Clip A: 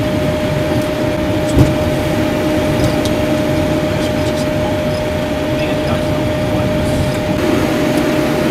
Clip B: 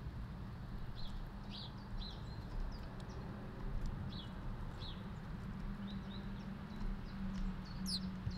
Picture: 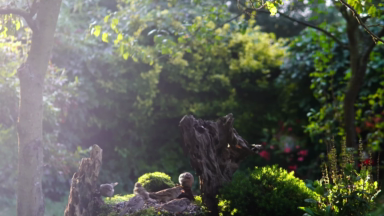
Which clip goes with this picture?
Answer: B